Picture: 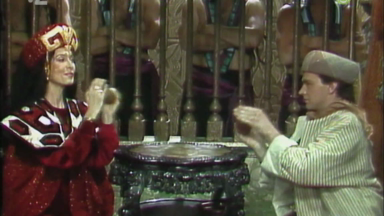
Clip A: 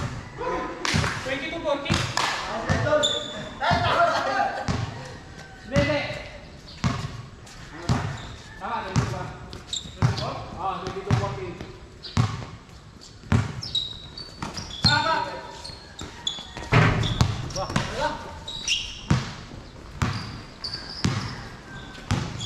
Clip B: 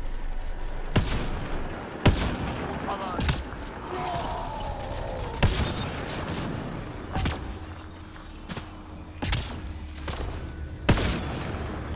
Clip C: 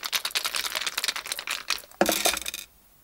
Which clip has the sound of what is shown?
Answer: C